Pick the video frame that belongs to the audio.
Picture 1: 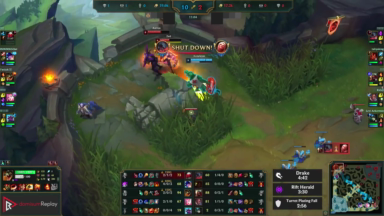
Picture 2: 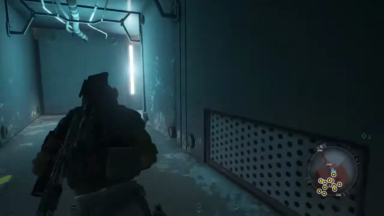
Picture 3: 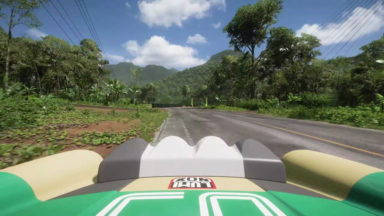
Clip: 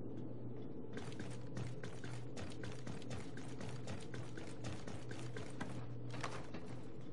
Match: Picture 2